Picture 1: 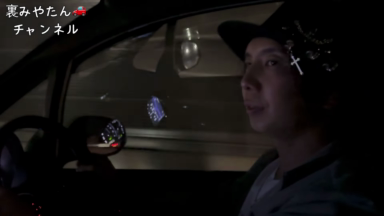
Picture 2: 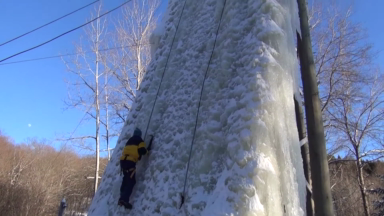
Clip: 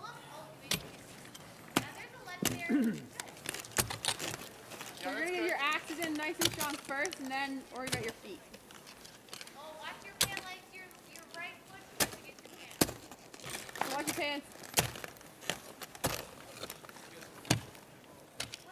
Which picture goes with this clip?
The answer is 2